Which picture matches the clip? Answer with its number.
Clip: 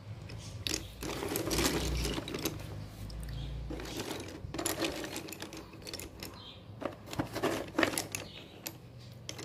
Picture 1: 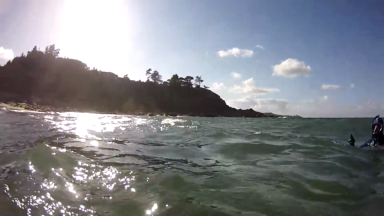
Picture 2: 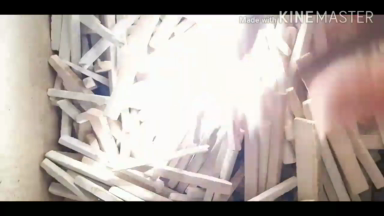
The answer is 2